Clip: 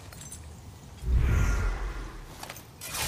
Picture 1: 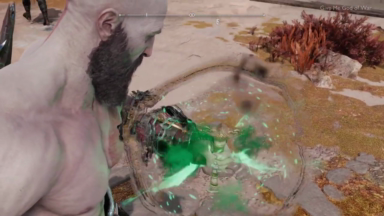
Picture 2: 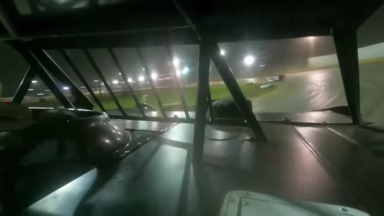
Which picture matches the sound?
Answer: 1